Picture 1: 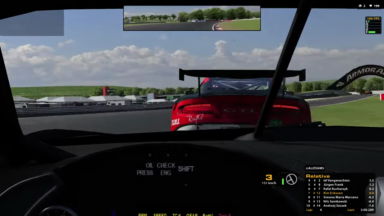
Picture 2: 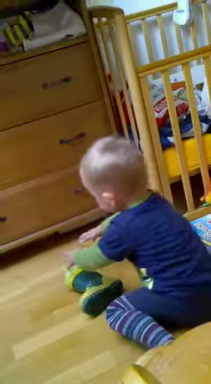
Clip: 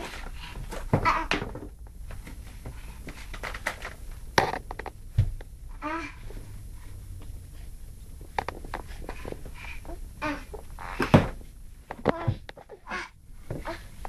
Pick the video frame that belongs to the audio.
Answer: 2